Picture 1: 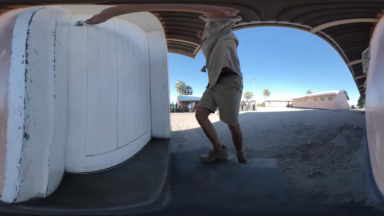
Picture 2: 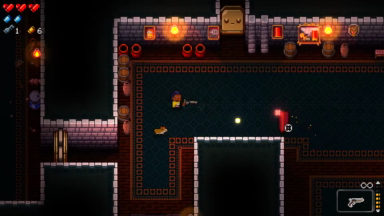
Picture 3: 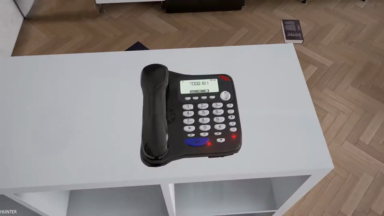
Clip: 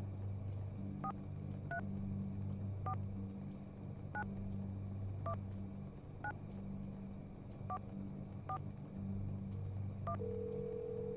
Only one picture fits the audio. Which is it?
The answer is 3